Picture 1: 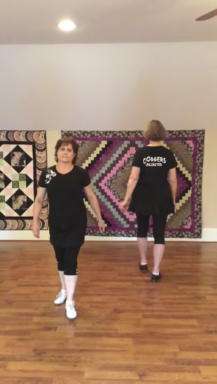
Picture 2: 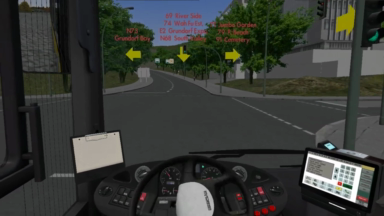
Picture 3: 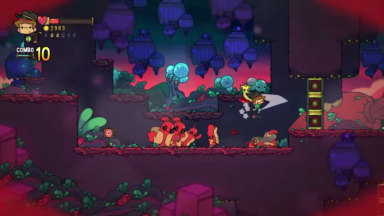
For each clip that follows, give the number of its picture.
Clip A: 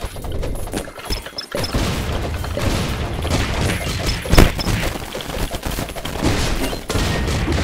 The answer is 3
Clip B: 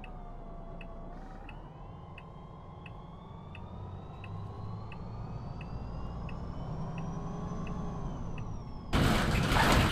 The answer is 2